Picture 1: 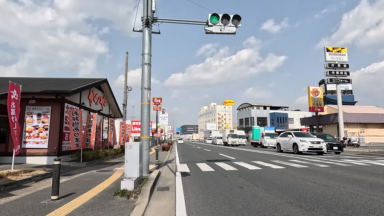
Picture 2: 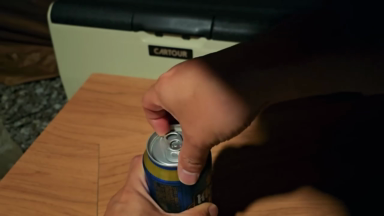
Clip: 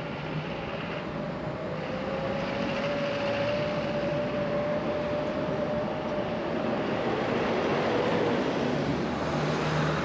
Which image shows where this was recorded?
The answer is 1